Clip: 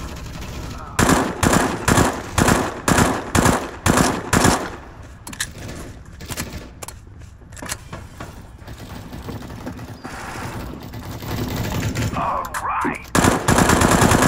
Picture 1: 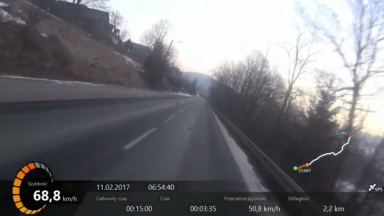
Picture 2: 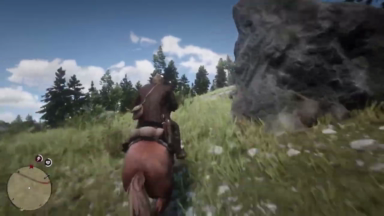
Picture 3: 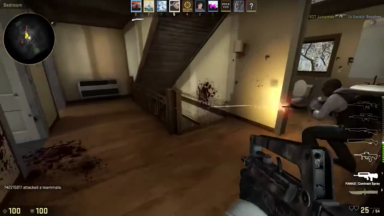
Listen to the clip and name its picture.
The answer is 3